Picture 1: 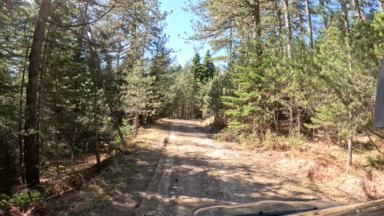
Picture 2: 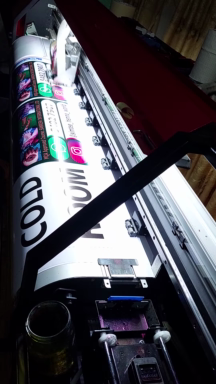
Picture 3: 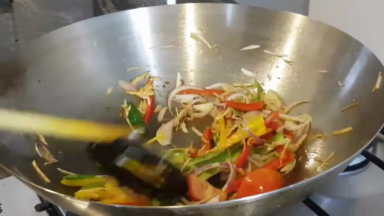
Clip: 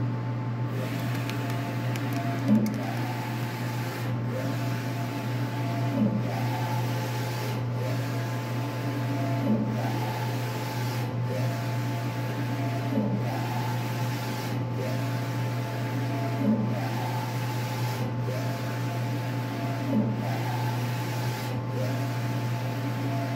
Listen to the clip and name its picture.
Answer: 2